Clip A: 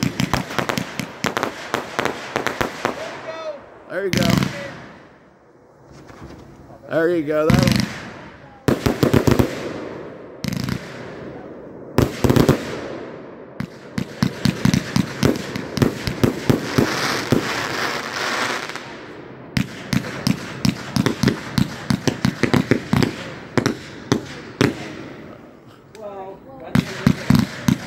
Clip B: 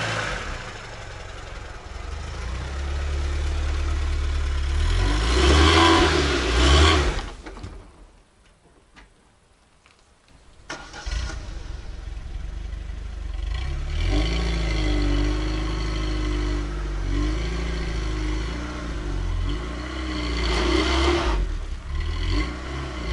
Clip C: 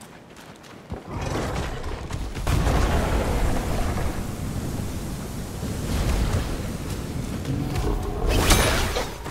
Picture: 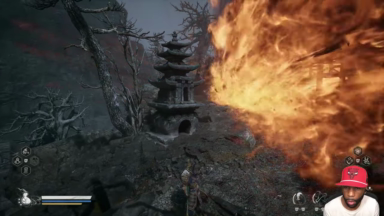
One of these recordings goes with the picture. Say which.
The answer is C